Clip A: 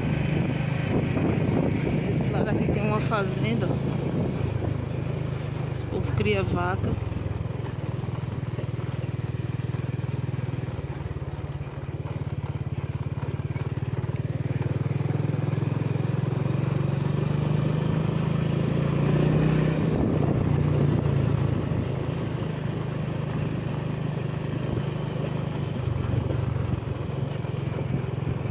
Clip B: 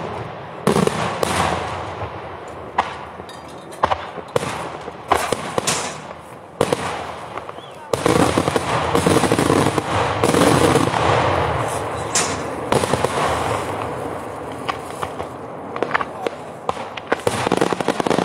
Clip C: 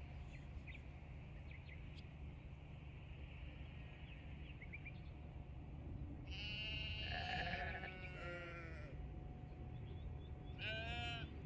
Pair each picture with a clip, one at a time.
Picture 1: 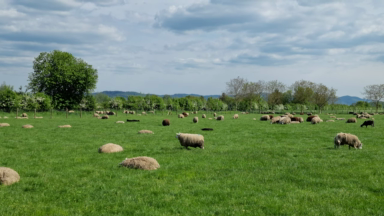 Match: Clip C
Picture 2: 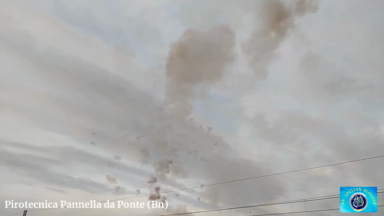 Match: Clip B